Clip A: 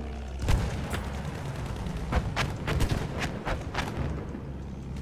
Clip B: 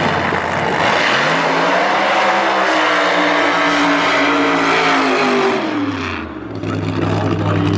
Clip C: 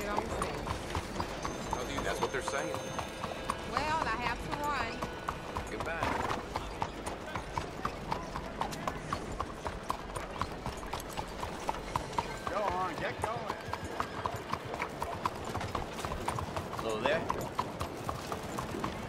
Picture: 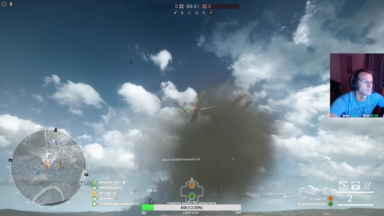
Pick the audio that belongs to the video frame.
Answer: A